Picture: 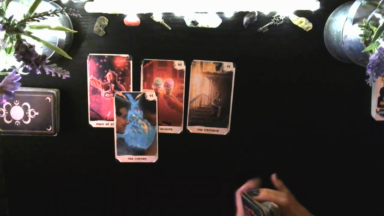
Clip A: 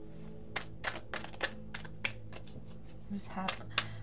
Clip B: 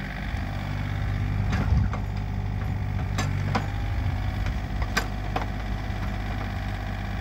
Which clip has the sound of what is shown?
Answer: A